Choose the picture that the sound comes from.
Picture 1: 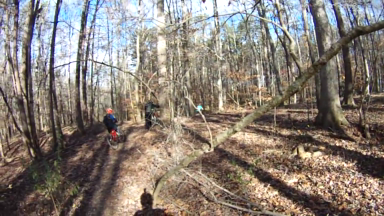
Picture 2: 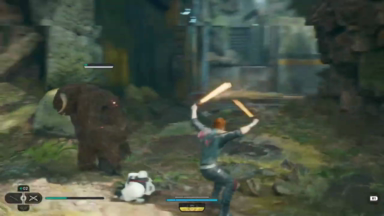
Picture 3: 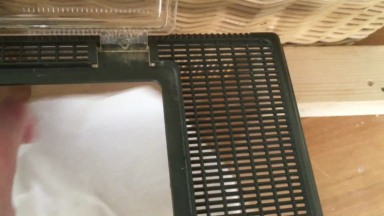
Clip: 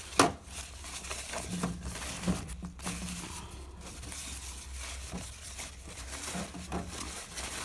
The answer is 3